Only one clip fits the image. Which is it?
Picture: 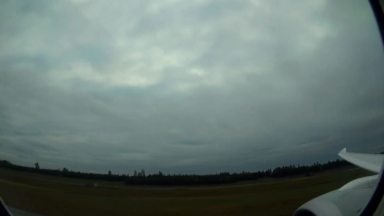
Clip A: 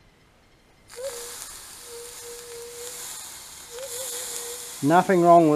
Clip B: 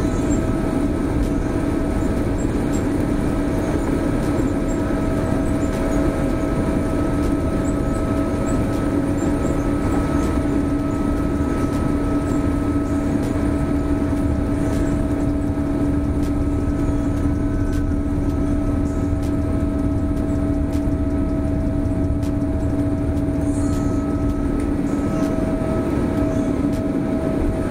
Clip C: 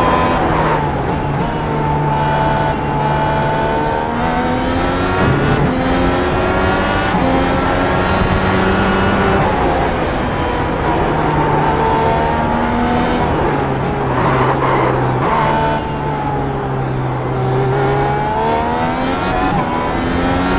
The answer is B